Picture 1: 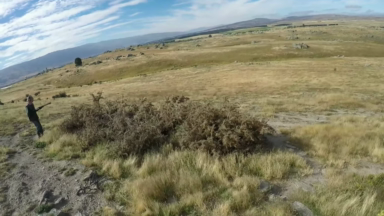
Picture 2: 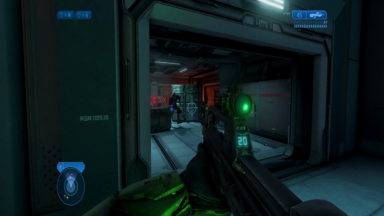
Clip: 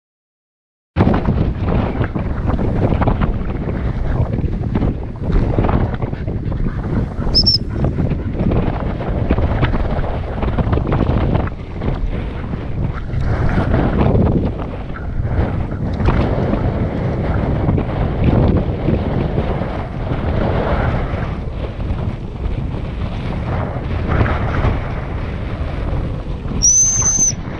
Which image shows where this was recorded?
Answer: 1